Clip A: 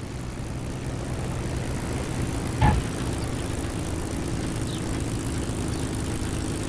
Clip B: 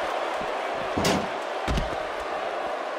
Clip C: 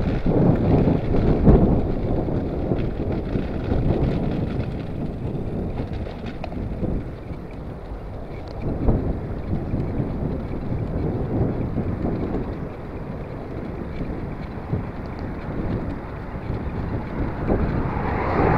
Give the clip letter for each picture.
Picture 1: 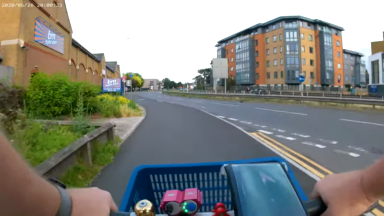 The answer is C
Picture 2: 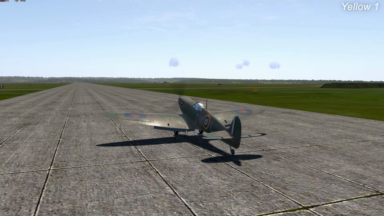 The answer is A